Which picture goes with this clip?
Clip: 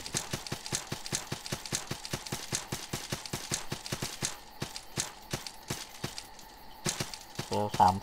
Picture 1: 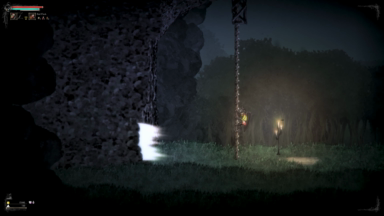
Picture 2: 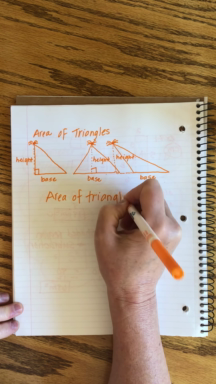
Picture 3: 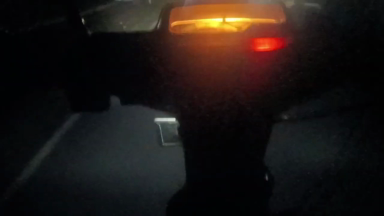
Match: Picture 1